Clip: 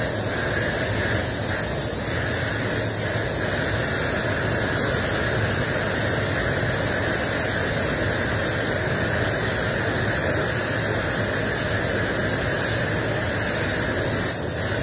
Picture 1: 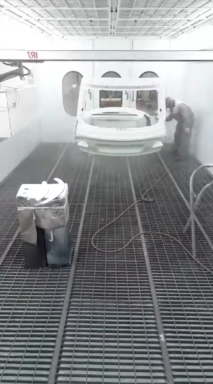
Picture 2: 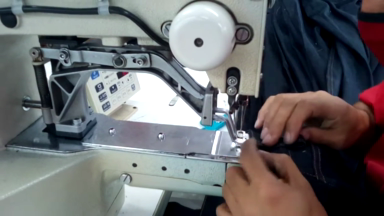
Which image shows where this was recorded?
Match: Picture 1